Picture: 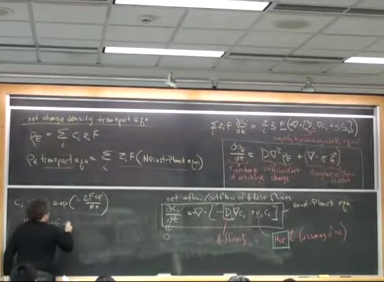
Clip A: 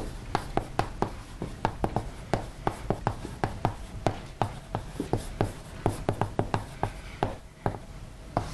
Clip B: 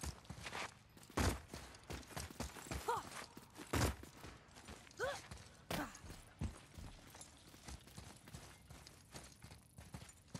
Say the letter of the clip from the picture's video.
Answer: A